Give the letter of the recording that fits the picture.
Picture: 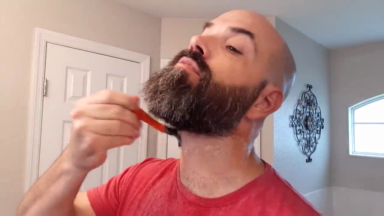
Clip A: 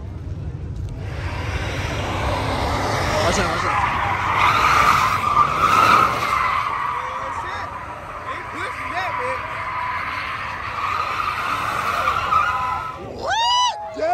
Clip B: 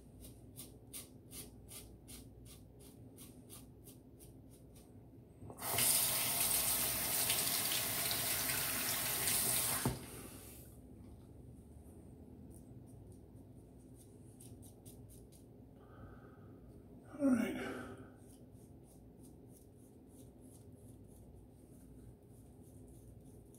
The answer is B